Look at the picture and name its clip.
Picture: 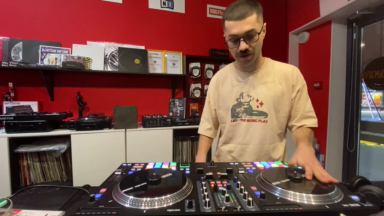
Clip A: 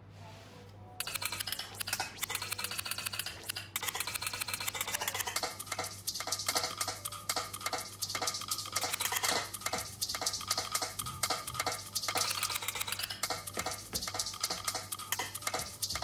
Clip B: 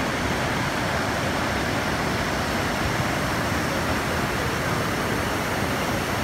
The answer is A